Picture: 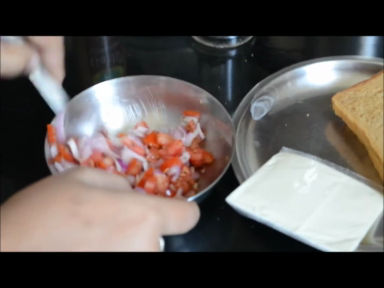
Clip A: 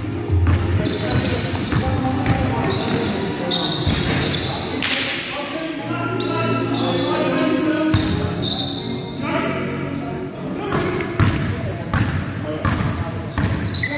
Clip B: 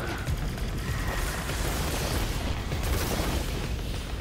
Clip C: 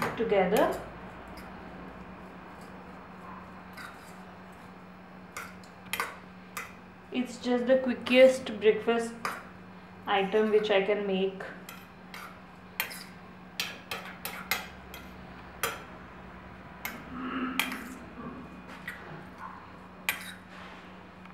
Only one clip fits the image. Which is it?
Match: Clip C